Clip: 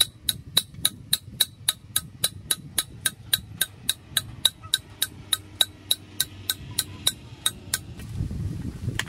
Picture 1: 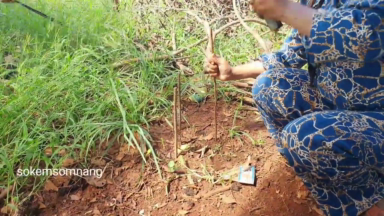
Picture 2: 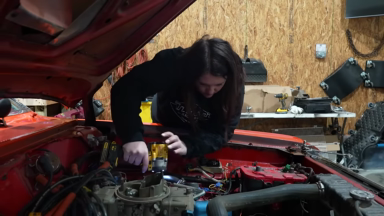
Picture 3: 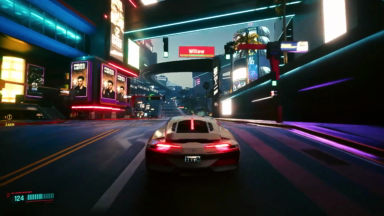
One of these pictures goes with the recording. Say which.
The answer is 1